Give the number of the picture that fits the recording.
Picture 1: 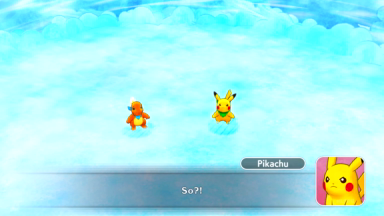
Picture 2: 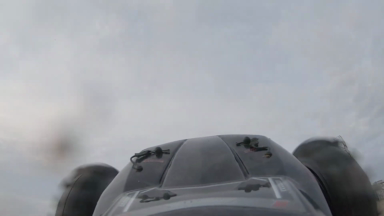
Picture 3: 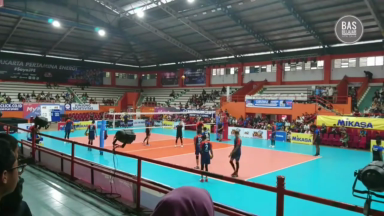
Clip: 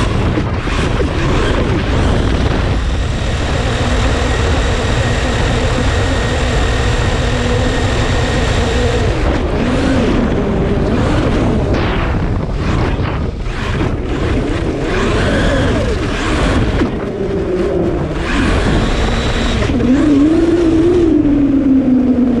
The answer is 2